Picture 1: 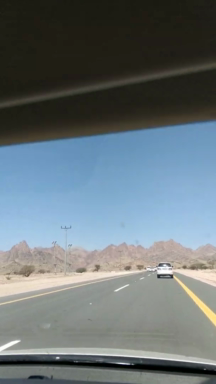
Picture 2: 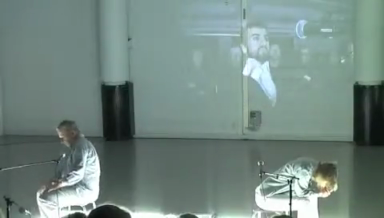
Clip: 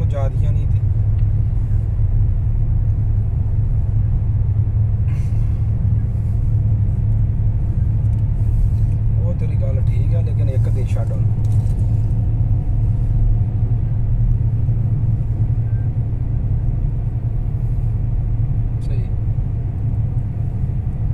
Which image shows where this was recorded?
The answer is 1